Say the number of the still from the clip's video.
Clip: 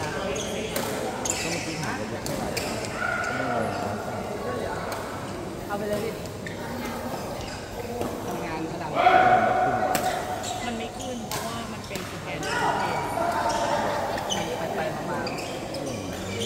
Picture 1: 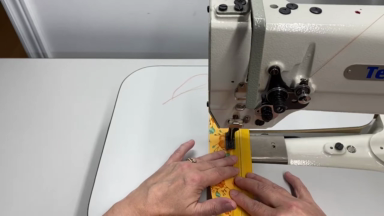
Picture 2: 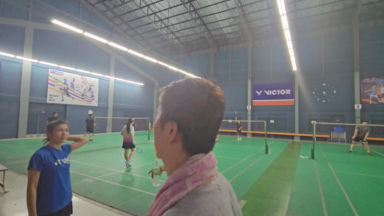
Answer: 2